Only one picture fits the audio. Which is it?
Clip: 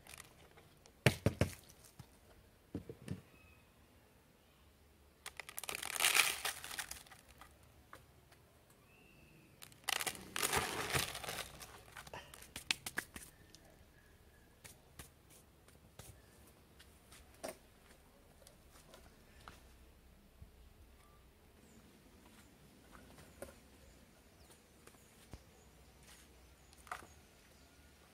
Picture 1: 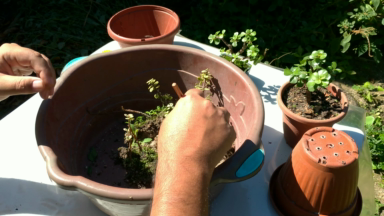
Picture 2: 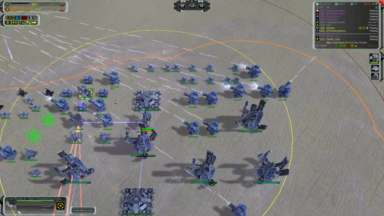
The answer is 1